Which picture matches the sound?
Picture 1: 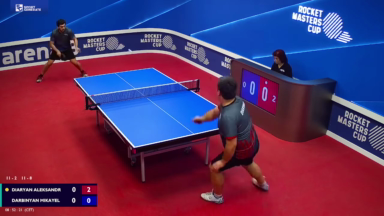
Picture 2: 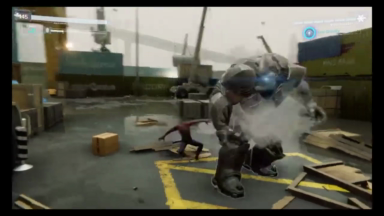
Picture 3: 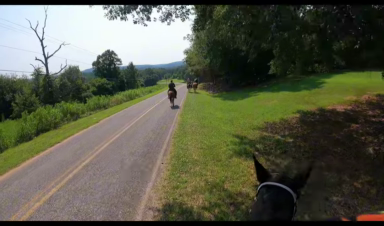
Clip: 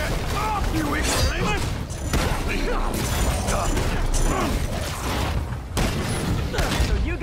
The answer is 2